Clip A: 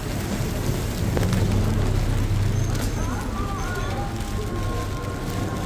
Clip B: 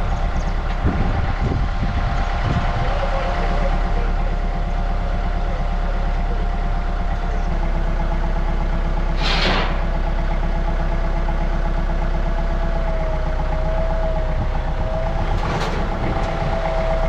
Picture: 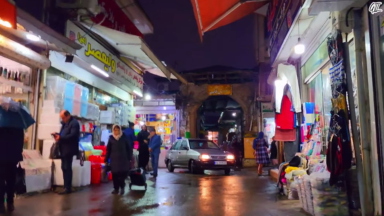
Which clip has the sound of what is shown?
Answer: A